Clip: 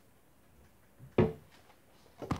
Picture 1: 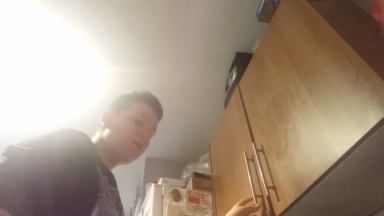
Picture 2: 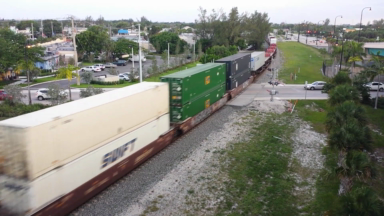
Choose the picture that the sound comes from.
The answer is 1